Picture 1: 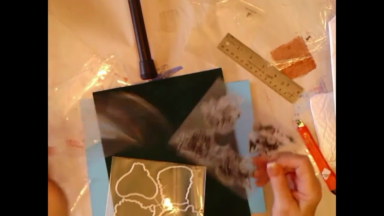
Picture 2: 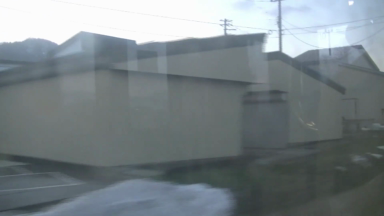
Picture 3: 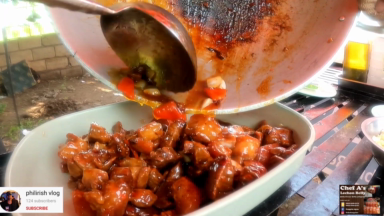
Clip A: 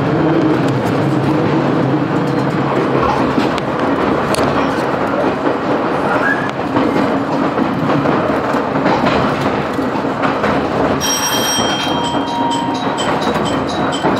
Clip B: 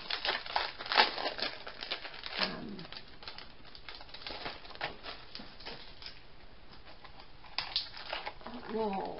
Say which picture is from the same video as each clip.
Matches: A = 2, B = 1